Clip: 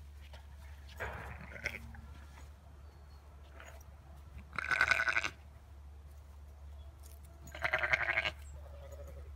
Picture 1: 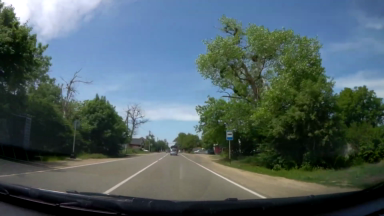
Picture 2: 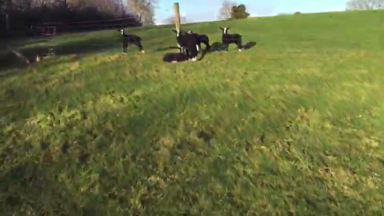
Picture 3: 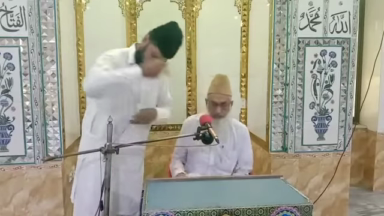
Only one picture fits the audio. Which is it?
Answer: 2